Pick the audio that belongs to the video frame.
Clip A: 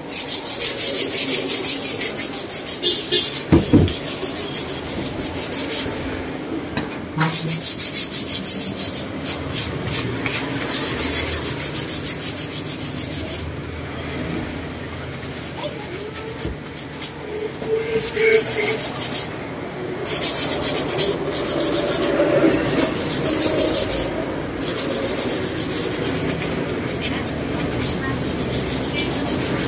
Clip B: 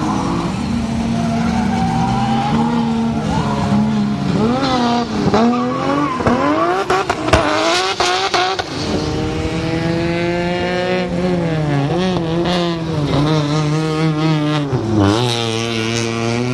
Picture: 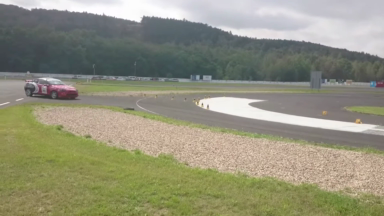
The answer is B